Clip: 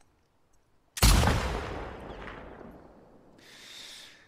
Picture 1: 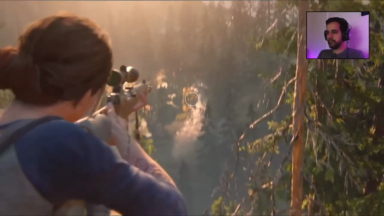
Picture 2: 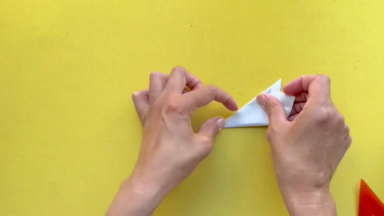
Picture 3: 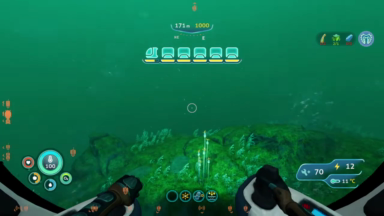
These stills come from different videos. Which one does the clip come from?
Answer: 1